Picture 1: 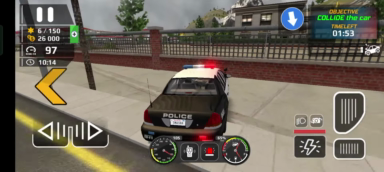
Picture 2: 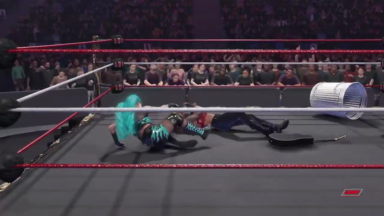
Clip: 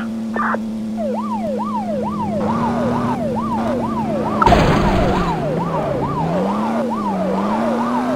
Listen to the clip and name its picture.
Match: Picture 1